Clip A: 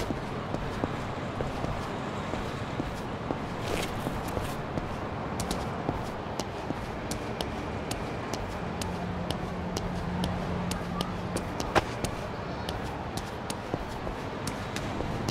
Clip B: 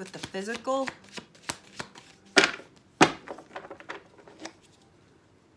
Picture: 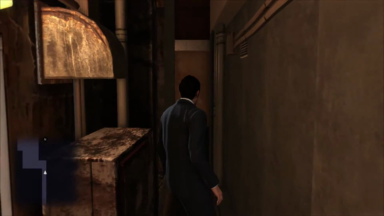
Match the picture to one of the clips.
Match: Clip A